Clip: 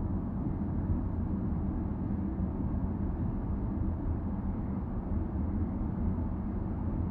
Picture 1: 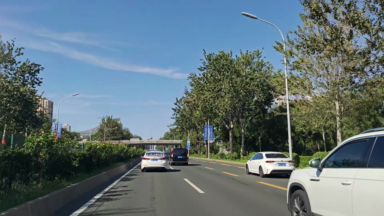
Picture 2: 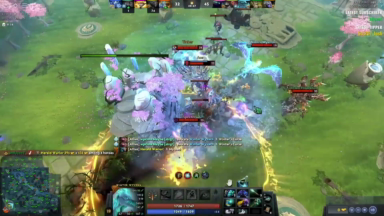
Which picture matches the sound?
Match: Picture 1